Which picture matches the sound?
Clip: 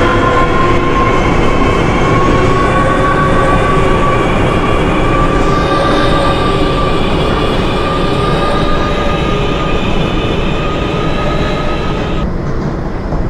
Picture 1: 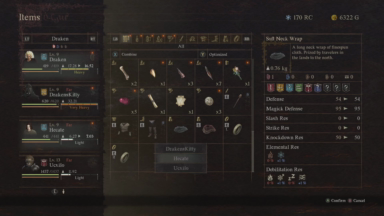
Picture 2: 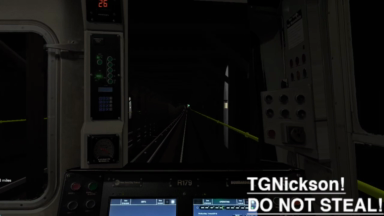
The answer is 2